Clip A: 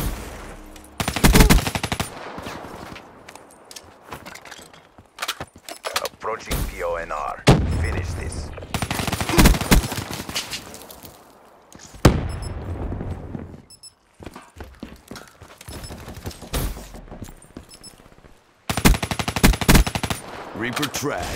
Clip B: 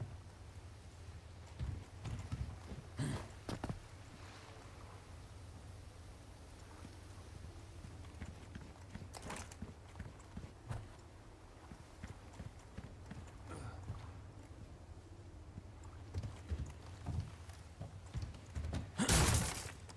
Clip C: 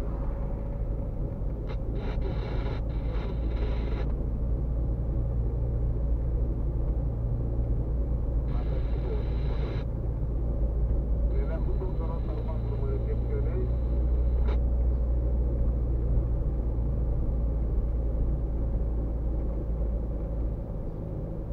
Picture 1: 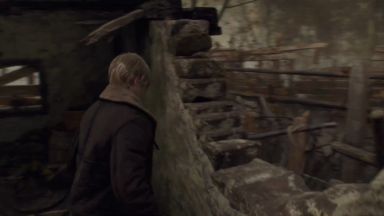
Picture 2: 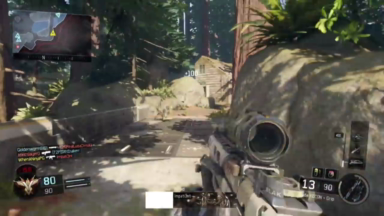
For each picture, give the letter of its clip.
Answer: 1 B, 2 A